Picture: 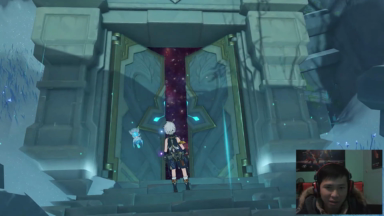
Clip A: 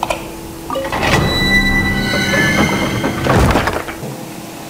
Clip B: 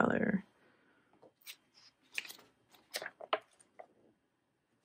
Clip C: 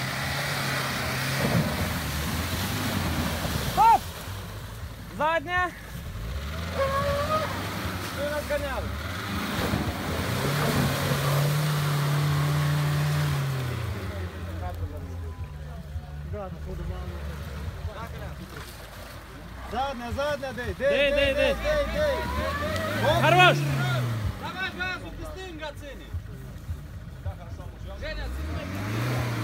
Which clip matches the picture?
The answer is A